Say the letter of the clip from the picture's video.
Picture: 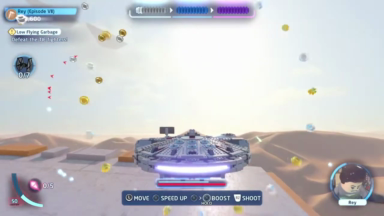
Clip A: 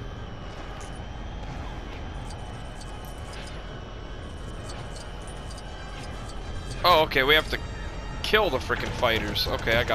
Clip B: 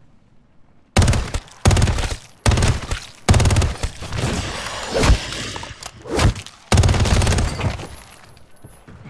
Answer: A